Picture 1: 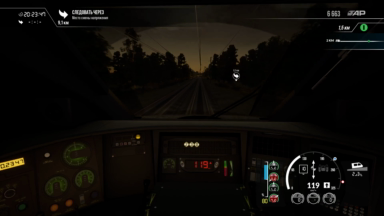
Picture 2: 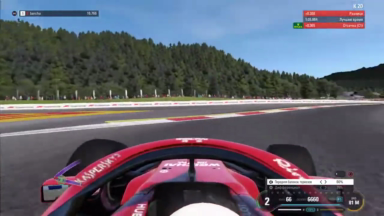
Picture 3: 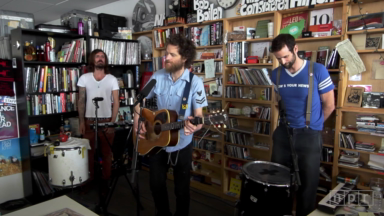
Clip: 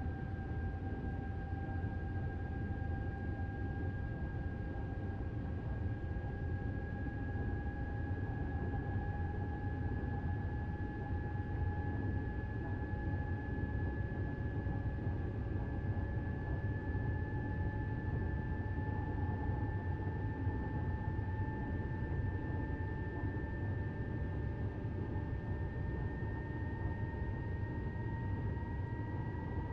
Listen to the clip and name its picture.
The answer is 1